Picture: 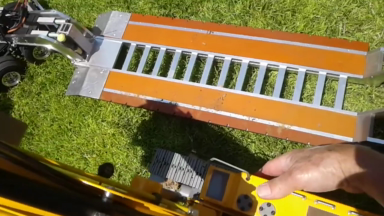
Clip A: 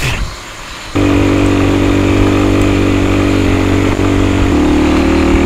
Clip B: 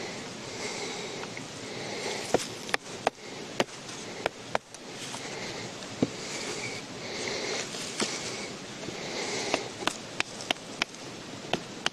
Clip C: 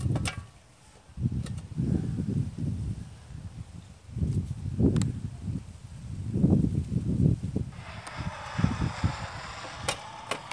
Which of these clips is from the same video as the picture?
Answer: C